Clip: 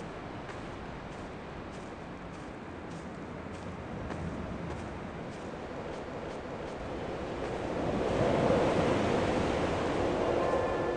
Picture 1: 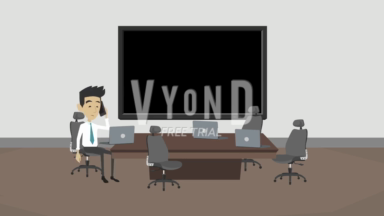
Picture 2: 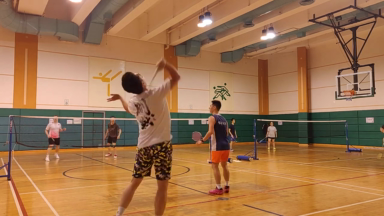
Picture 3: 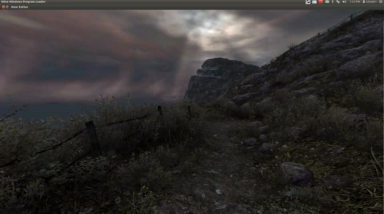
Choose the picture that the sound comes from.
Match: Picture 3